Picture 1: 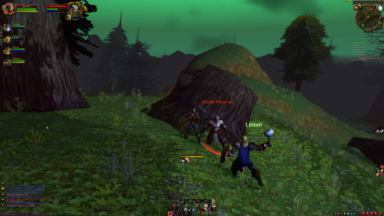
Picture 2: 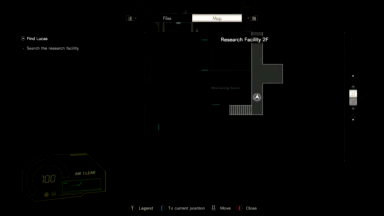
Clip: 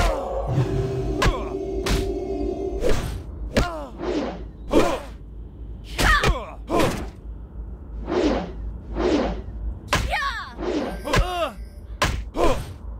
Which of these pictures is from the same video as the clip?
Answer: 1